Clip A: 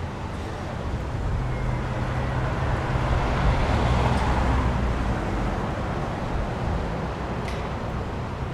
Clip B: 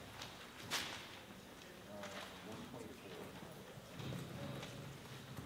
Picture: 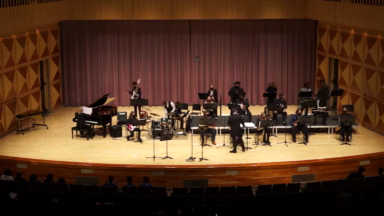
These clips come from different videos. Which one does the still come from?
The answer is B